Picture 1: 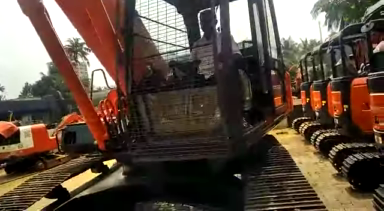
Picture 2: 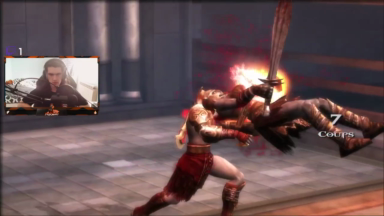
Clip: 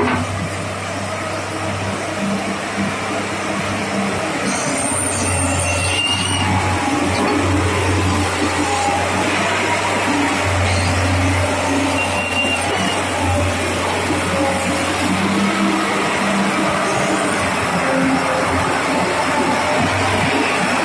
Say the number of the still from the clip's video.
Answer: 1